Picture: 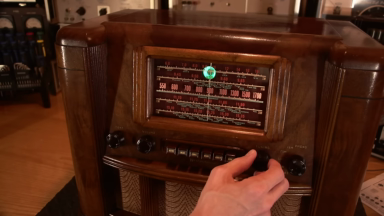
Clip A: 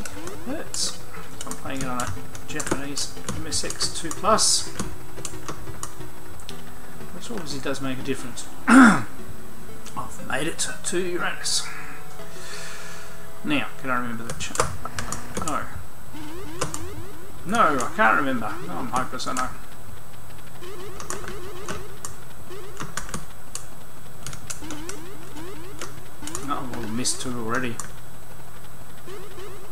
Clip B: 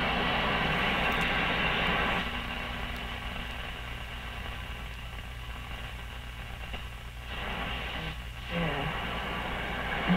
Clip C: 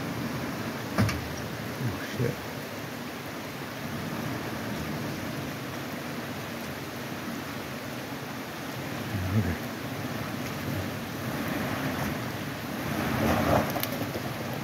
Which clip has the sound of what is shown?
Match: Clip B